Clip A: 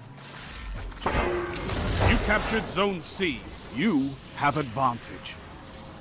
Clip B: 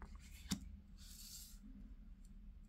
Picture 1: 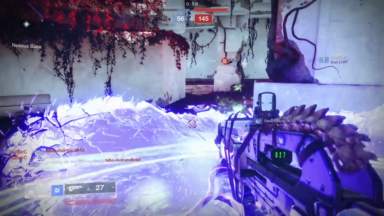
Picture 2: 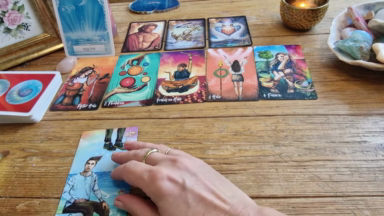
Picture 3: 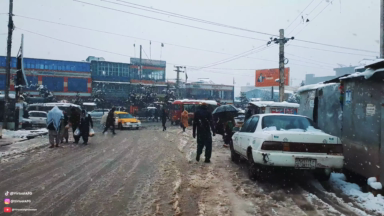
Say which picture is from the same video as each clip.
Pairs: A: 1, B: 2